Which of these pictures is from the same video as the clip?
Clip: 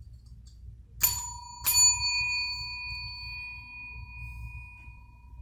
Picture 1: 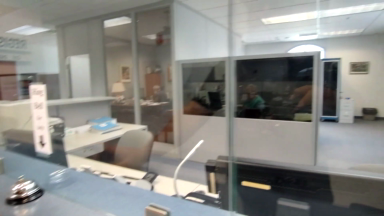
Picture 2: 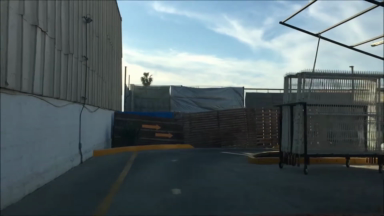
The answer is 1